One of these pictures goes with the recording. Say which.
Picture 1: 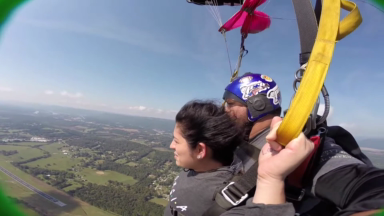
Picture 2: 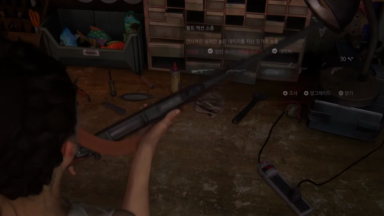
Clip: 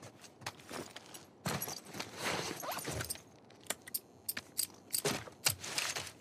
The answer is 2